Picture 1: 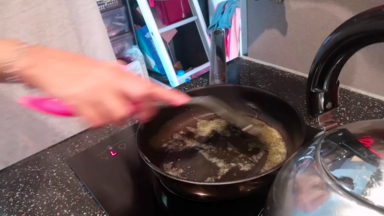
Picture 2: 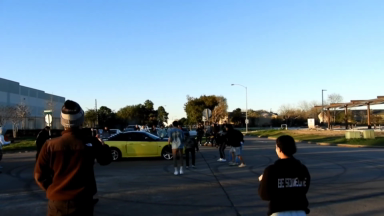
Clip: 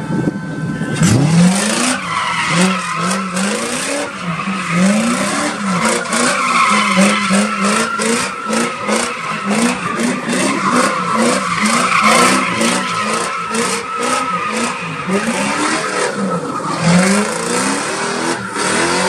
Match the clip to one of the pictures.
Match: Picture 2